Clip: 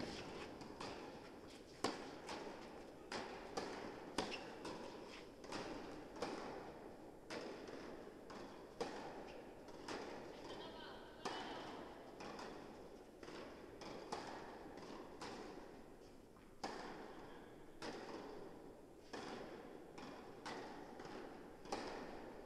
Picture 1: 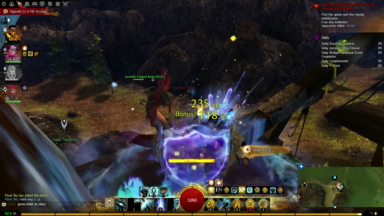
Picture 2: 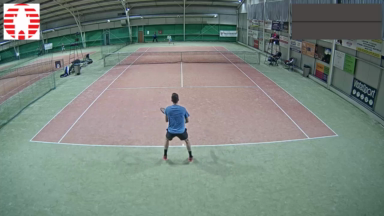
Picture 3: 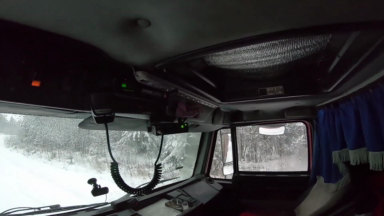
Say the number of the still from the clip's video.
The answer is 2